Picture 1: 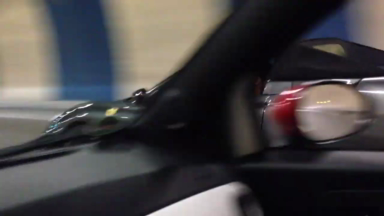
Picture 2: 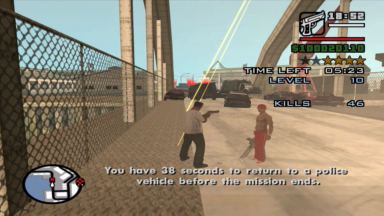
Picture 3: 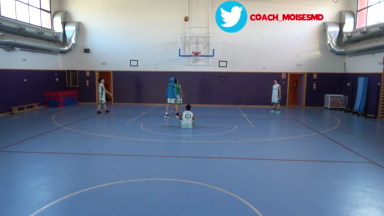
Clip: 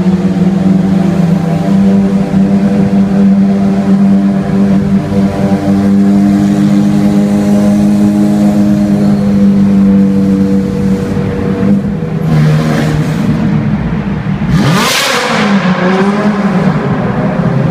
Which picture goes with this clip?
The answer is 1